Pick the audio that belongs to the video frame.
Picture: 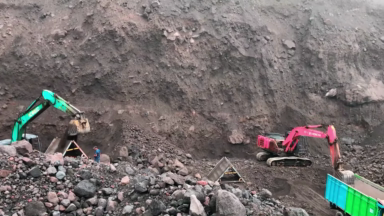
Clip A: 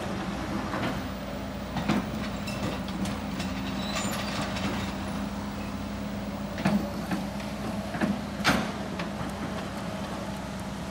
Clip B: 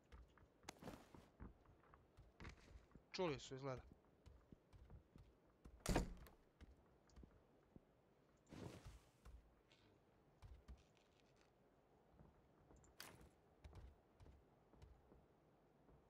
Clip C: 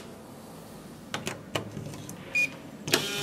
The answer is A